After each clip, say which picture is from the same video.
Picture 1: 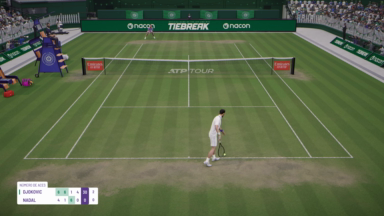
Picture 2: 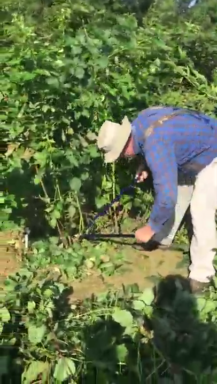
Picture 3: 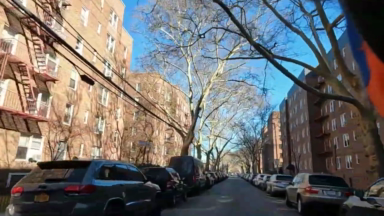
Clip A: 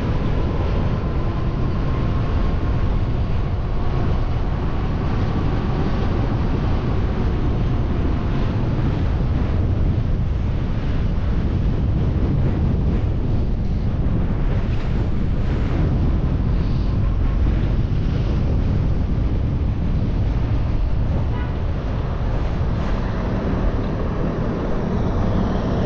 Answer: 3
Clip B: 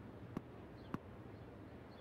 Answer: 1